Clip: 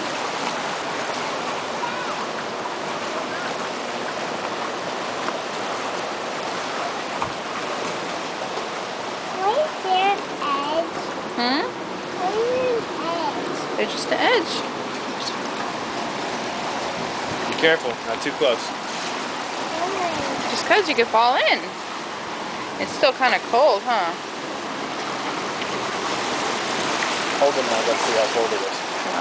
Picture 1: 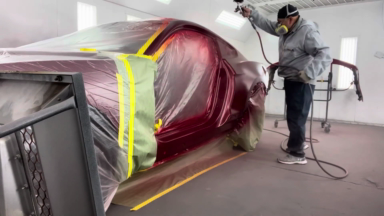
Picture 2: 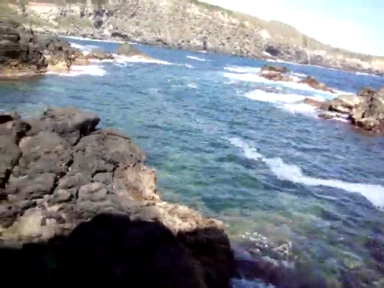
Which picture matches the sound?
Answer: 2